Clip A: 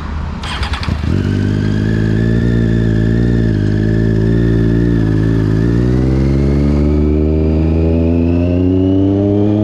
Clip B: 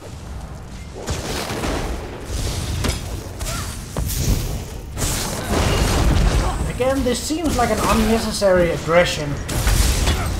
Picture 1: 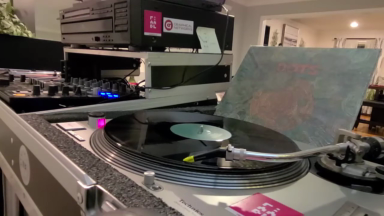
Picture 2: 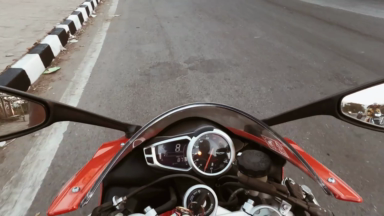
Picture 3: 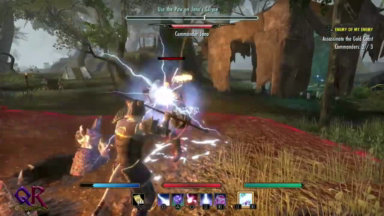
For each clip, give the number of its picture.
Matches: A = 2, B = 3